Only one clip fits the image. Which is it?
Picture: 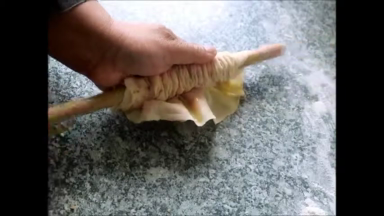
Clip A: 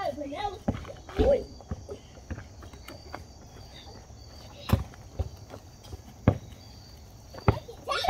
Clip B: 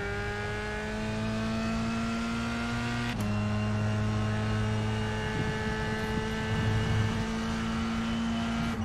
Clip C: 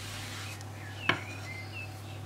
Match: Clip C